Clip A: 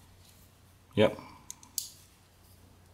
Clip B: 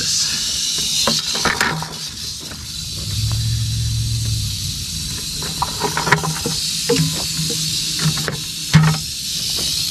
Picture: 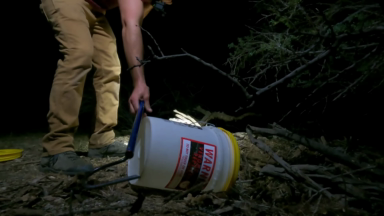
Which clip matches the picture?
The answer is B